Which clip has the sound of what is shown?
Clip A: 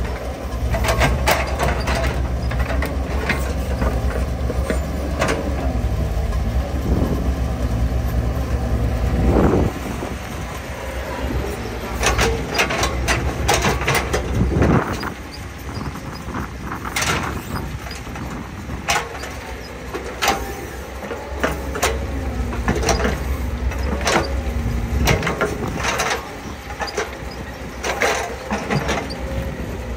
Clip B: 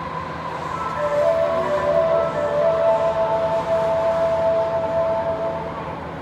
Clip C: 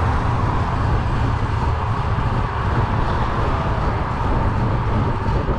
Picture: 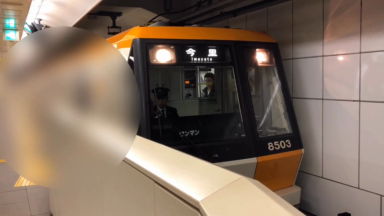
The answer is B